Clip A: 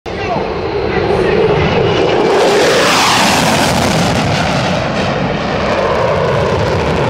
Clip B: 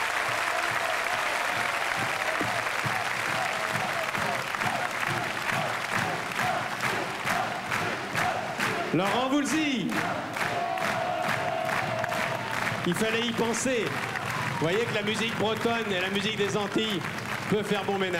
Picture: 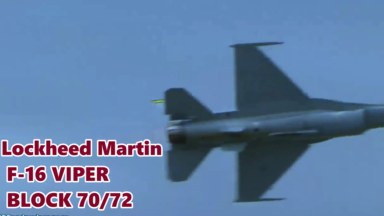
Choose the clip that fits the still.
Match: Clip A